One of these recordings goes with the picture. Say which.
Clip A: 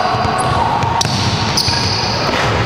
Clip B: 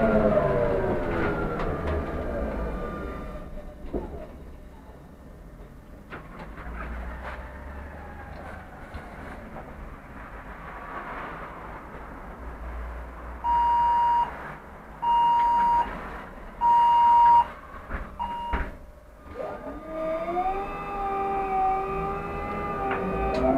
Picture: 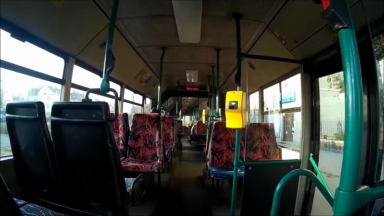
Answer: B